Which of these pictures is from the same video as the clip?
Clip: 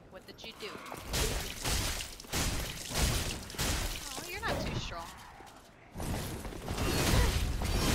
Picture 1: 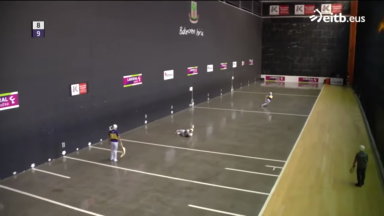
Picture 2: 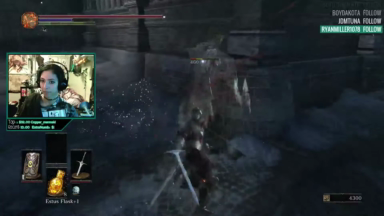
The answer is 2